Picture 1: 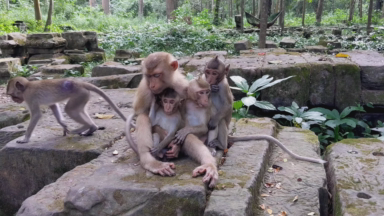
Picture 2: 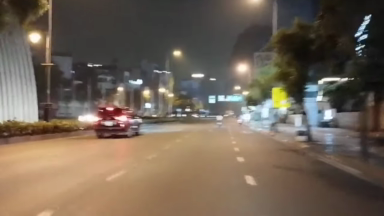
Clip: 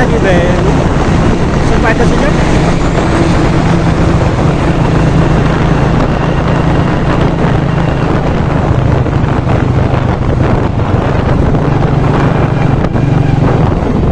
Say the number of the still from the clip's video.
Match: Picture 2